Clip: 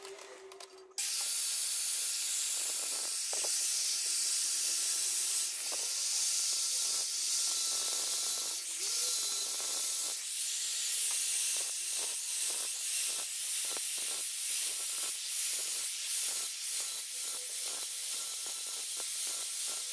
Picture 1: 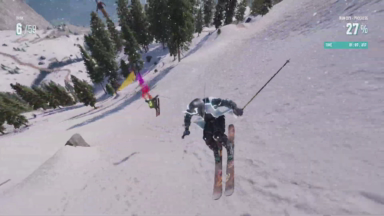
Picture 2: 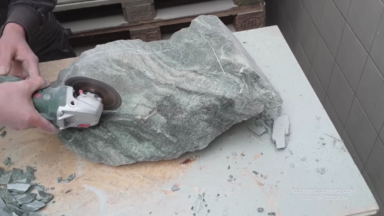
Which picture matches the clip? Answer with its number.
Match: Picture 2